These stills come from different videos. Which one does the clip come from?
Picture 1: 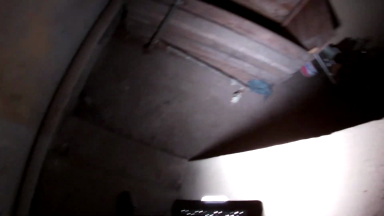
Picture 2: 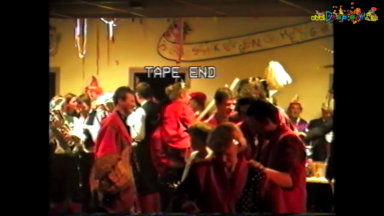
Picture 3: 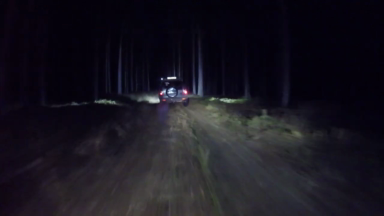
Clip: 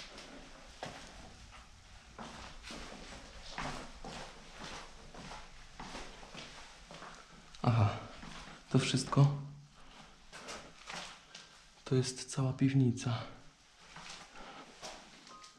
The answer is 1